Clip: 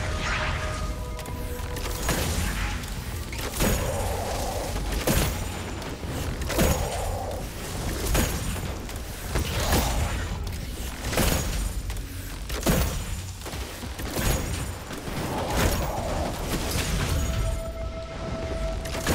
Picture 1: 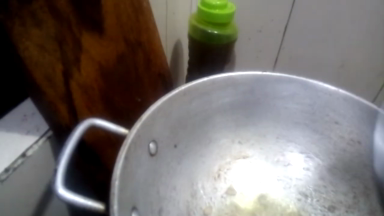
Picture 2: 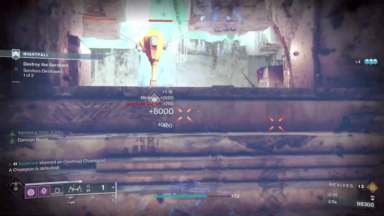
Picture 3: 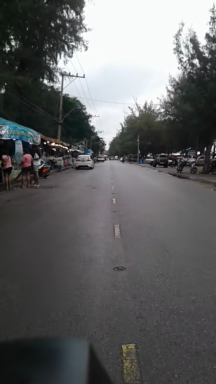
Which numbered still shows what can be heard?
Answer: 2